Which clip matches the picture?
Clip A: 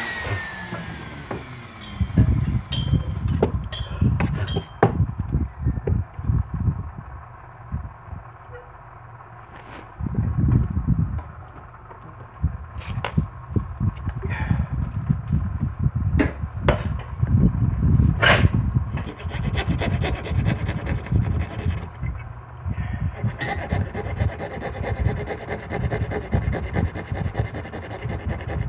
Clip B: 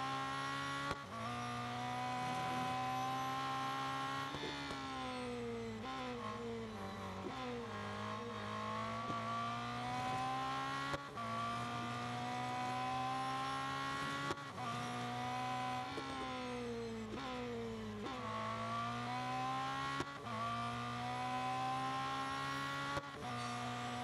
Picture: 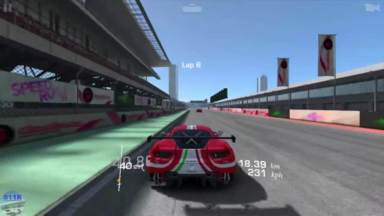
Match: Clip B